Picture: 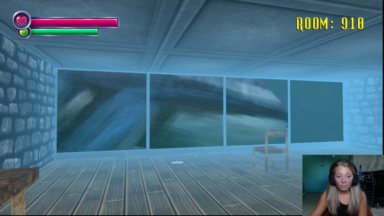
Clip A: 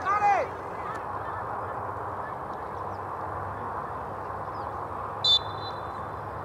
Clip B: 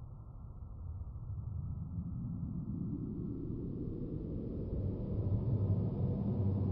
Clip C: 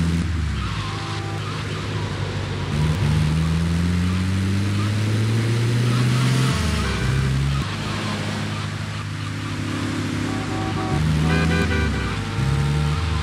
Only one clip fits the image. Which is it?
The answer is B